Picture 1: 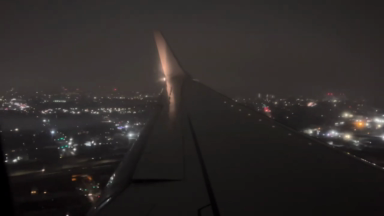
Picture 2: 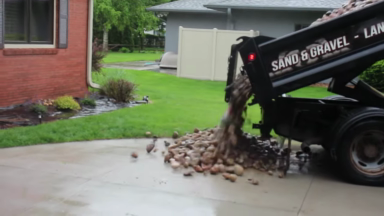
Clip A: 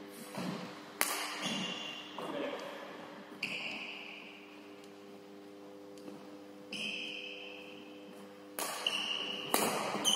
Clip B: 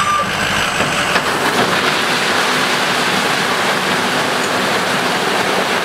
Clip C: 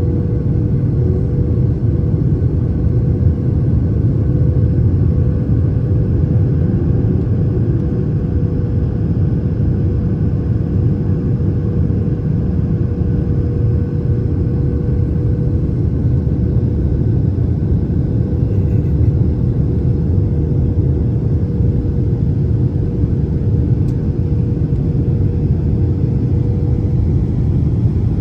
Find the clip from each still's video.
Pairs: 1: C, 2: B